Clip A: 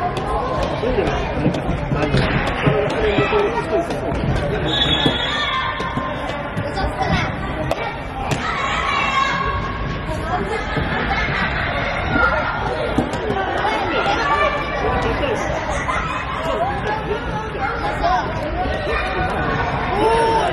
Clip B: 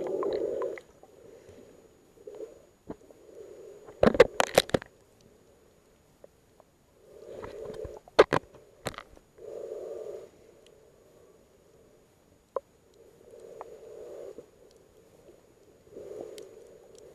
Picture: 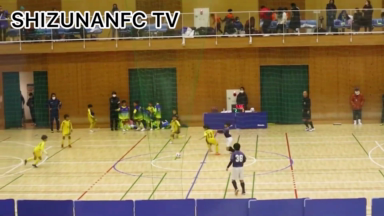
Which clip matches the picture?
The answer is A